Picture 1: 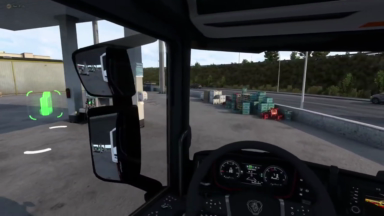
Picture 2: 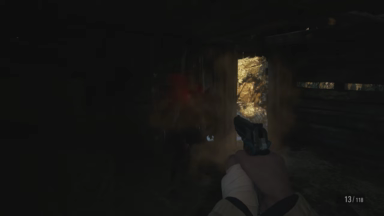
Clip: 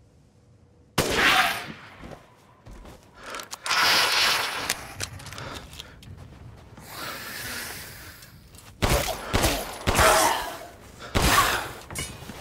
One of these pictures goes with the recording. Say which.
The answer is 2